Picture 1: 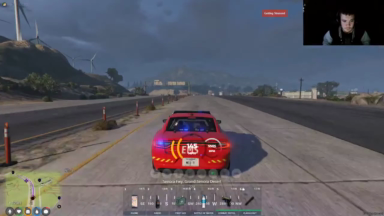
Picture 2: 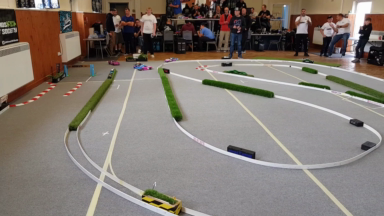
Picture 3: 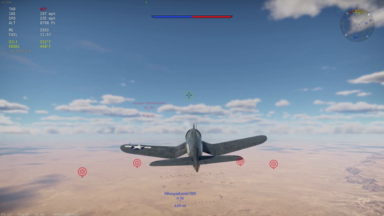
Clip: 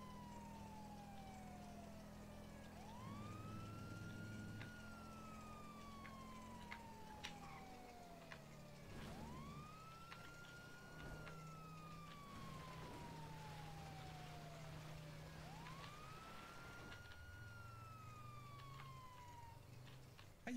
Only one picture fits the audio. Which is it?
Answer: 1